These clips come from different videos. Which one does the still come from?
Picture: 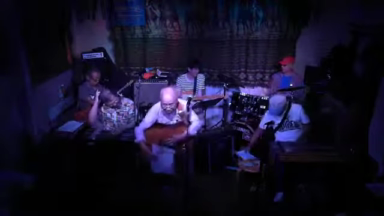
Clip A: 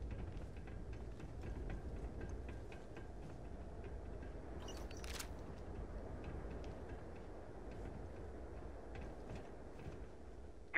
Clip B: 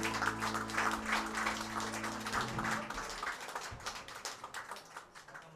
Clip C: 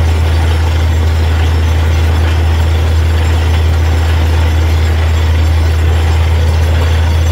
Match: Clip B